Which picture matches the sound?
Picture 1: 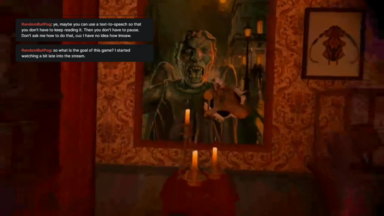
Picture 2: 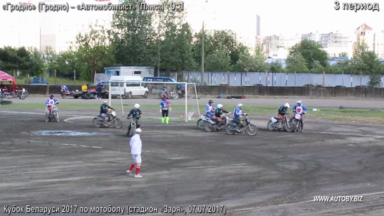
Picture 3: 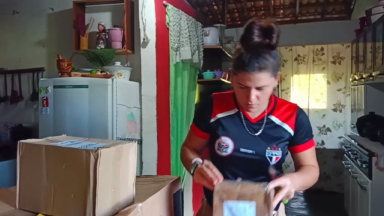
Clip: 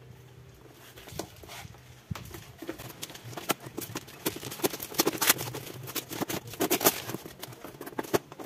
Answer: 3